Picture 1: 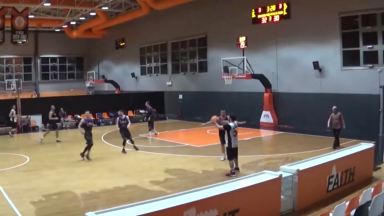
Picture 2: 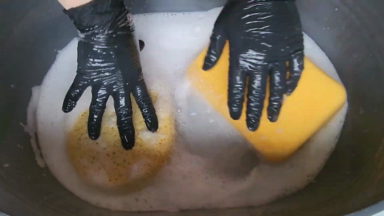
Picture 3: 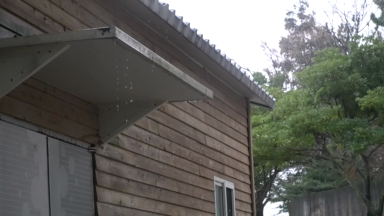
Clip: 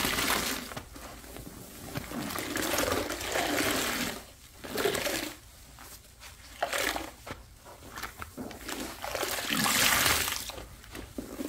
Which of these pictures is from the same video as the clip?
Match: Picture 2